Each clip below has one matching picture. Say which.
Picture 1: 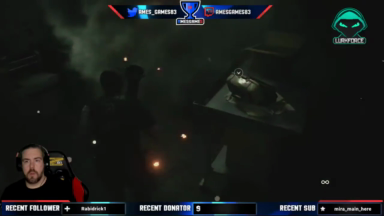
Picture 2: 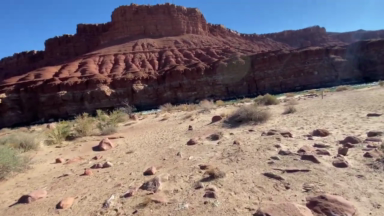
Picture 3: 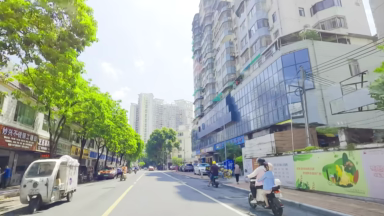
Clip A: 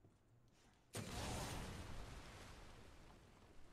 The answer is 1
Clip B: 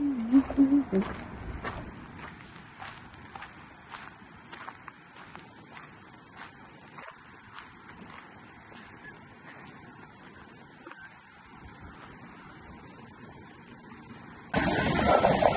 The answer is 2